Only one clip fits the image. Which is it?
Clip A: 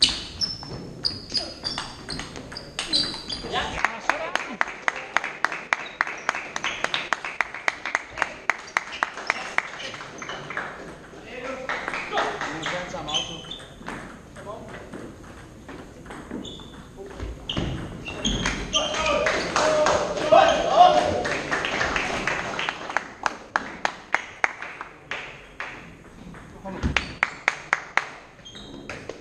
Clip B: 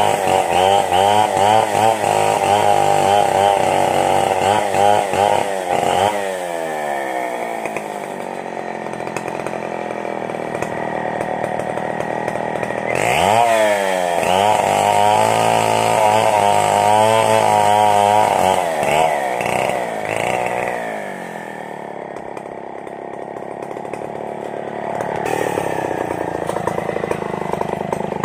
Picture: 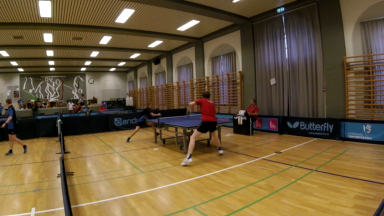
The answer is A